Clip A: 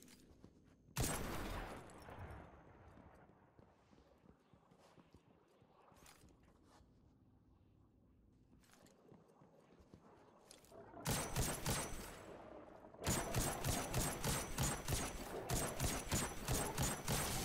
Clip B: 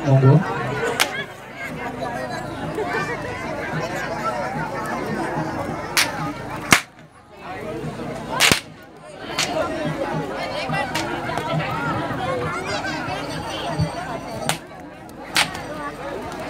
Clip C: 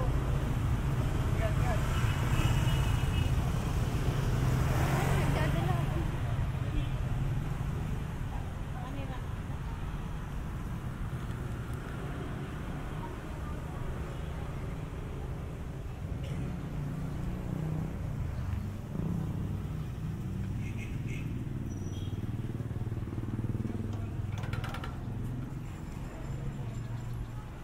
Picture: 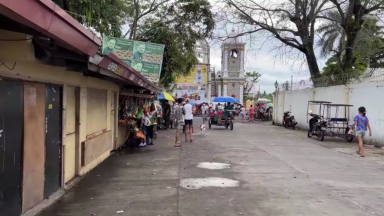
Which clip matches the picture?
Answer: C